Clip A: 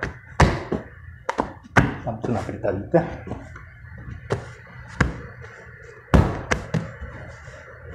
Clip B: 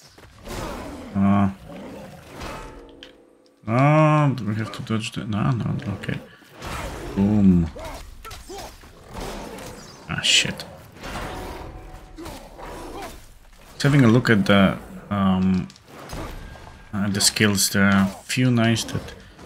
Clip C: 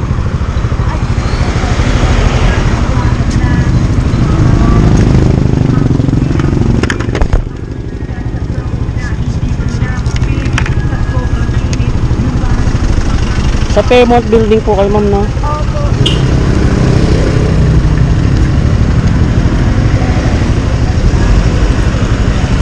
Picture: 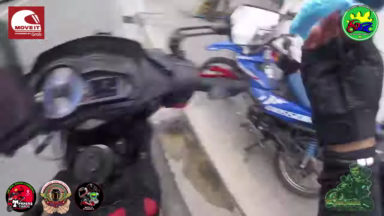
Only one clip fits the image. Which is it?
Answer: C